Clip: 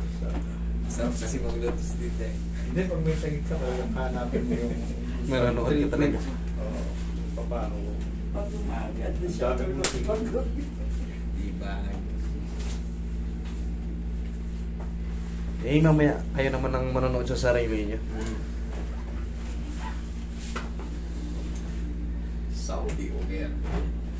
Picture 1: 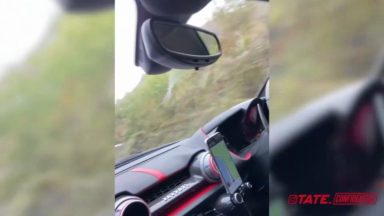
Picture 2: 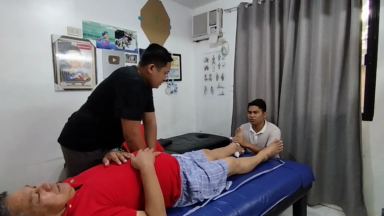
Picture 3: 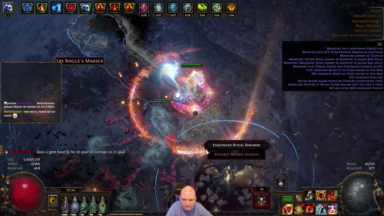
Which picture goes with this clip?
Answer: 2